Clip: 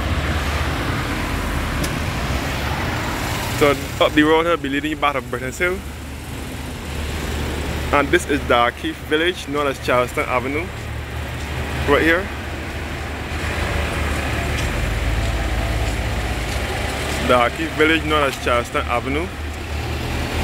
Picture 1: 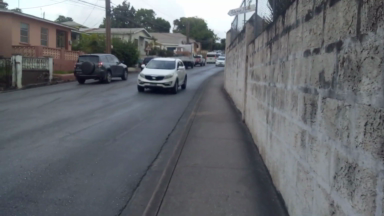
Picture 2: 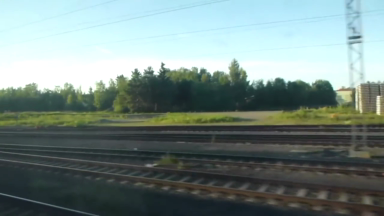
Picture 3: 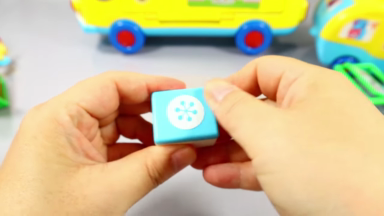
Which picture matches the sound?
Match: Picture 1